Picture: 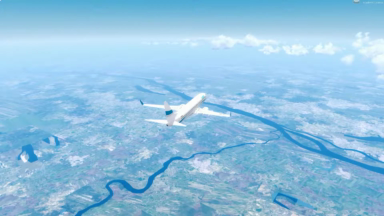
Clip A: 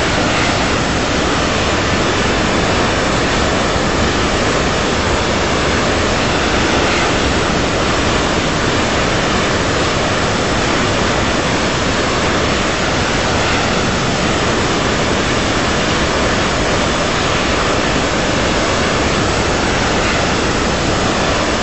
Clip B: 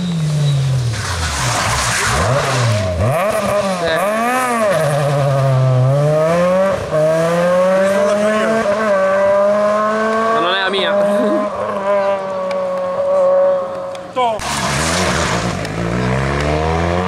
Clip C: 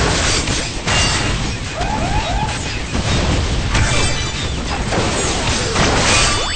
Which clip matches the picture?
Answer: A